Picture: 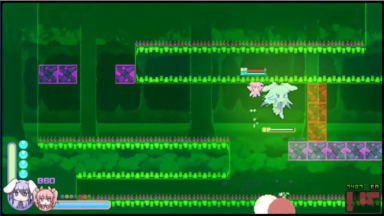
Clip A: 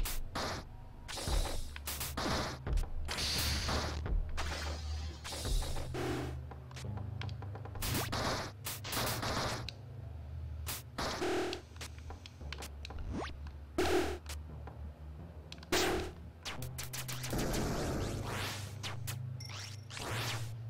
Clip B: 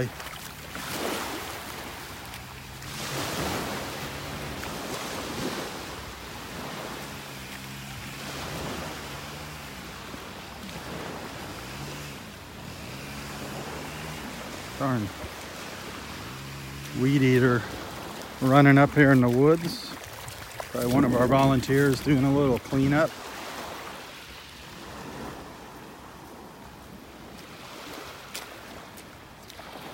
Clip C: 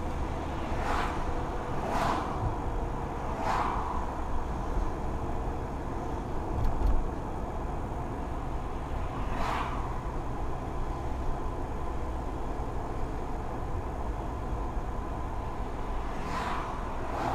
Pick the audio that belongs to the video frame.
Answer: A